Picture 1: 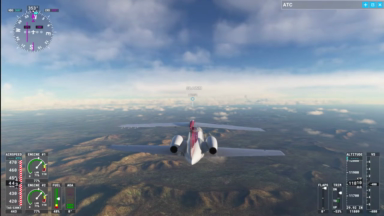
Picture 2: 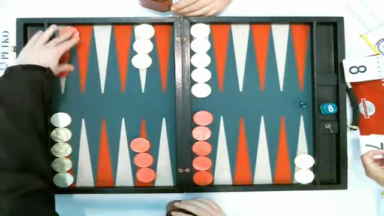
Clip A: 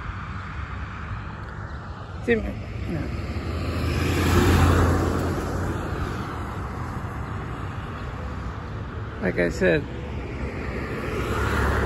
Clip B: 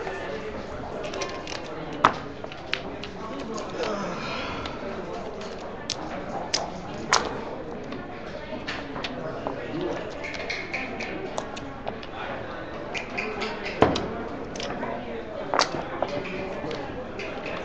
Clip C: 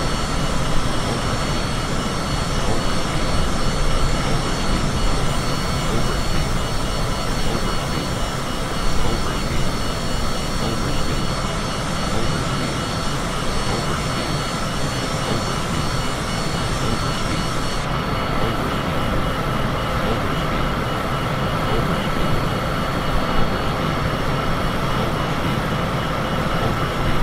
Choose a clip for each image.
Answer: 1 C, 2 B